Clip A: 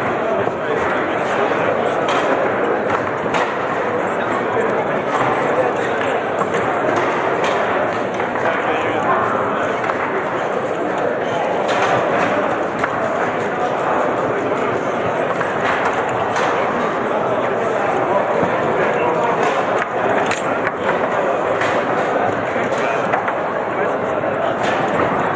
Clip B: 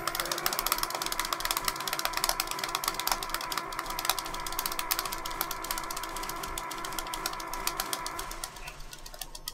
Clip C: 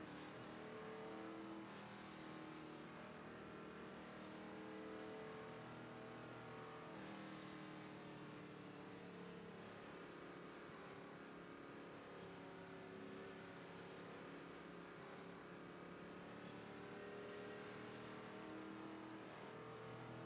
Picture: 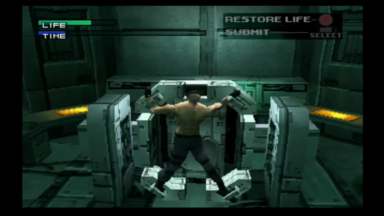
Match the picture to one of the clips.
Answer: B